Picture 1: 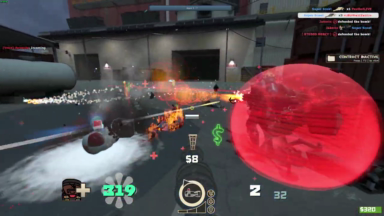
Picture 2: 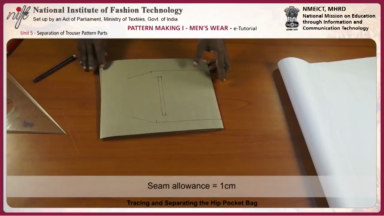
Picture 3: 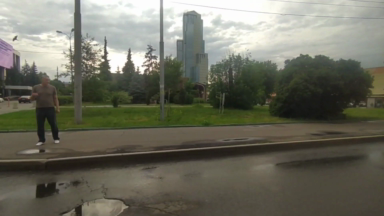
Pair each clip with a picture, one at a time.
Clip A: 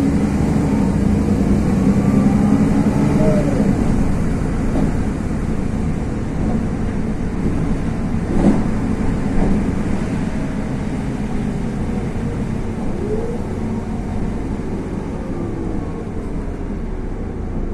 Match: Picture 3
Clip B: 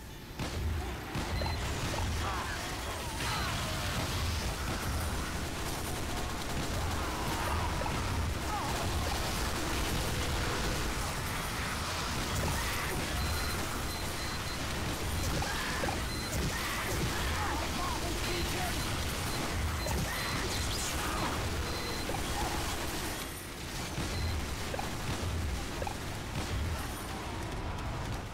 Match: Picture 1